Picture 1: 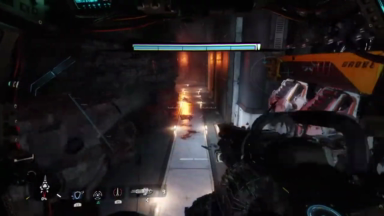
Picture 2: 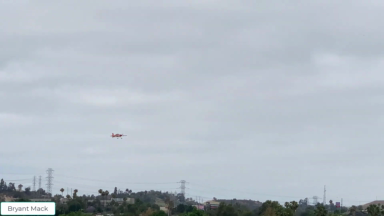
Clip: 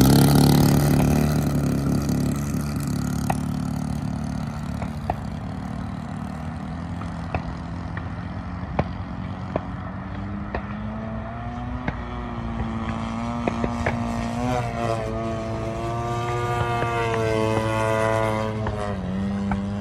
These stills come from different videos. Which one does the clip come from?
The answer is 2